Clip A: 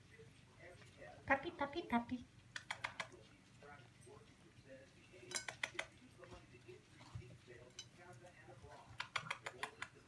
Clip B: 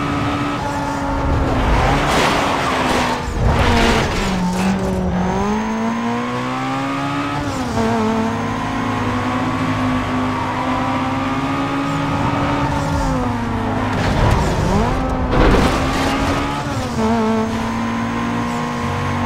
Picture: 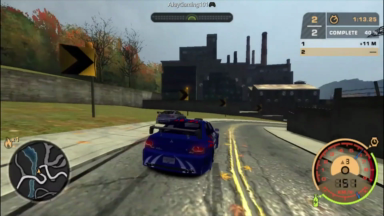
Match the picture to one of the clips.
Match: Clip B